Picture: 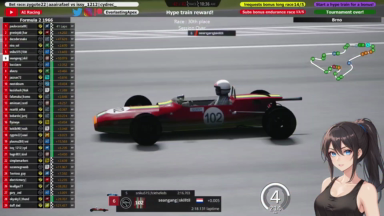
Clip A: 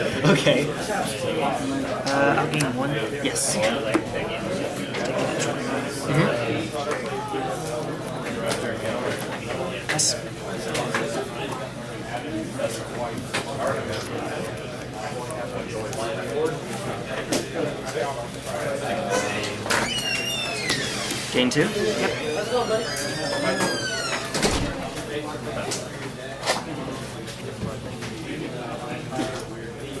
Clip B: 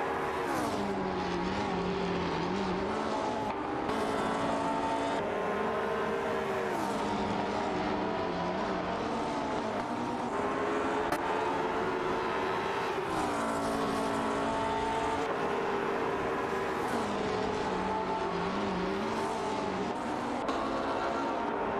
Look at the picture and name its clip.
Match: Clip B